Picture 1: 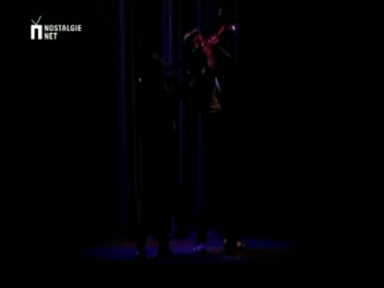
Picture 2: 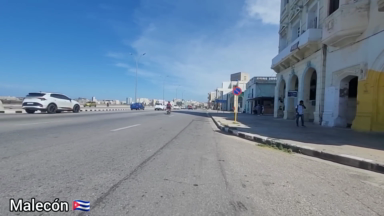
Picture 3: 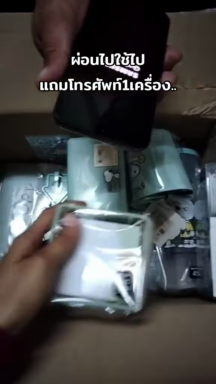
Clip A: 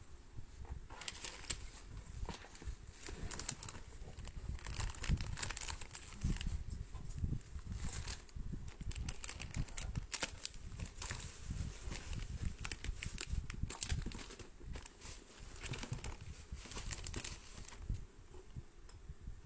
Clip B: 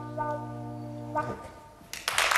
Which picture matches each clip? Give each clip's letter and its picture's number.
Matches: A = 3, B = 1